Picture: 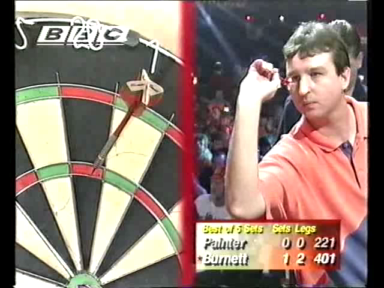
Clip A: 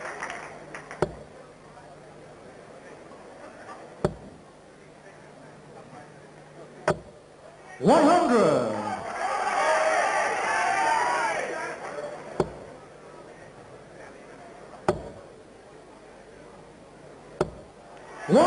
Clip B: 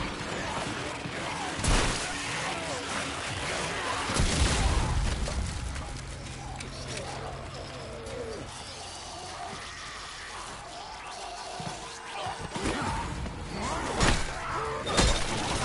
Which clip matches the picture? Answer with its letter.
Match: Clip A